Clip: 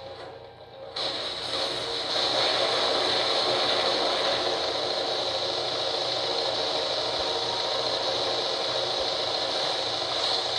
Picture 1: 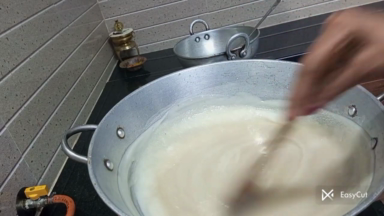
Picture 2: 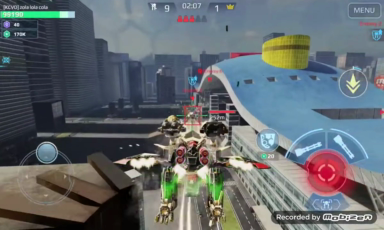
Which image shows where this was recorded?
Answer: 2